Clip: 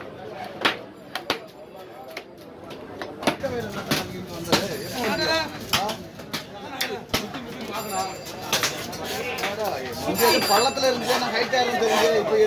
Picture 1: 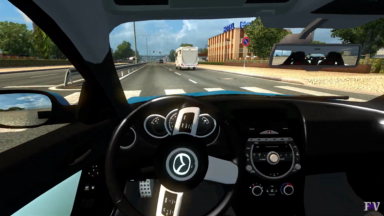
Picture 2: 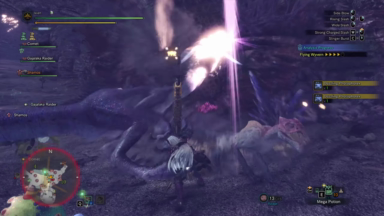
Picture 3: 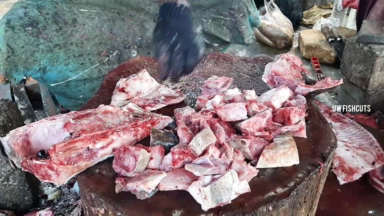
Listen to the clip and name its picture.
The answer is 3